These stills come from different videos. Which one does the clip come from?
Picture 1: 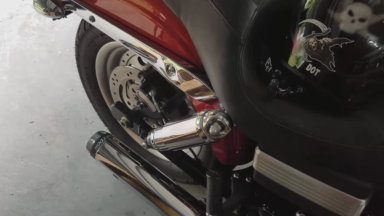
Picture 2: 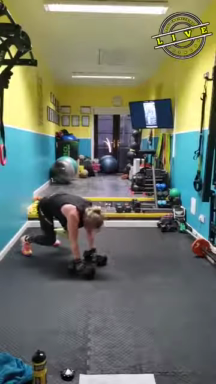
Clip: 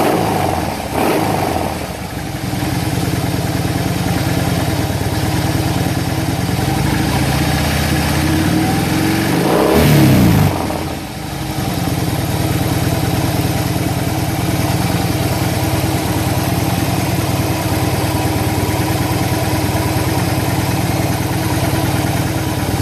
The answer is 1